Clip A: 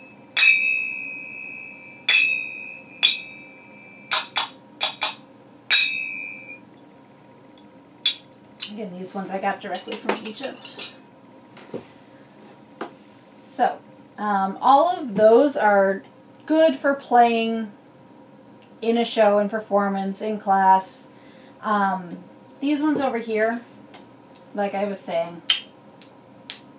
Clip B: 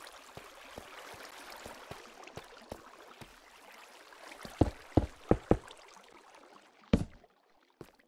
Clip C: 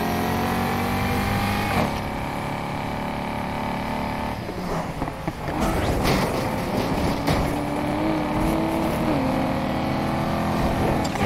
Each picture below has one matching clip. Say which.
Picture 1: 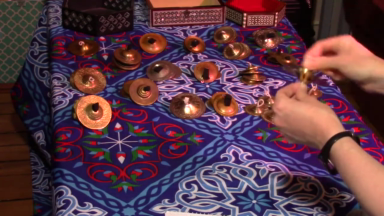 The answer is A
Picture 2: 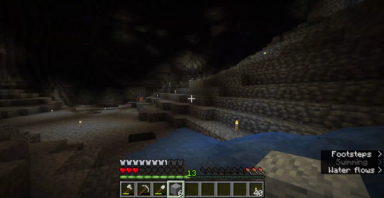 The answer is B